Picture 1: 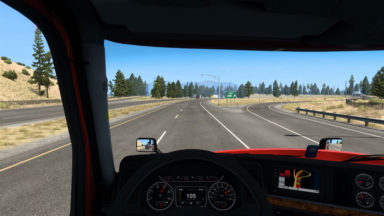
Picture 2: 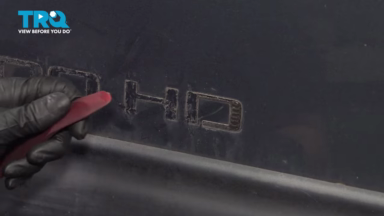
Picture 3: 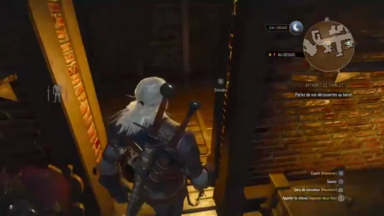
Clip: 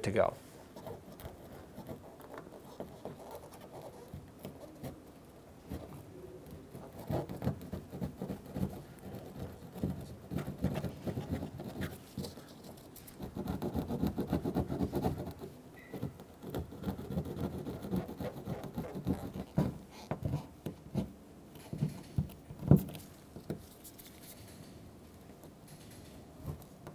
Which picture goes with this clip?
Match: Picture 2